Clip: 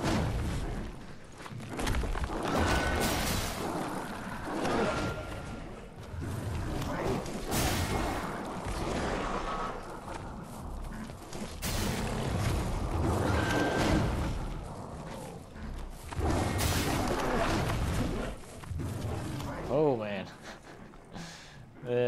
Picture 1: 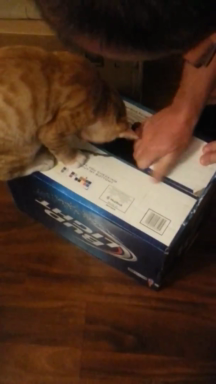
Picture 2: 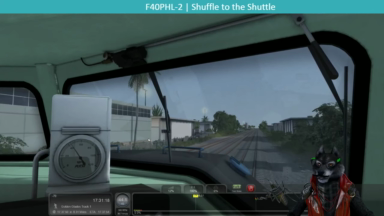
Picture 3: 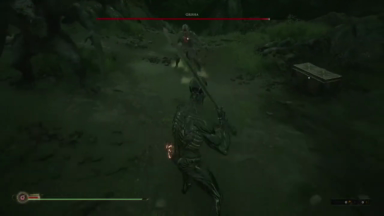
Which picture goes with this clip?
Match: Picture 3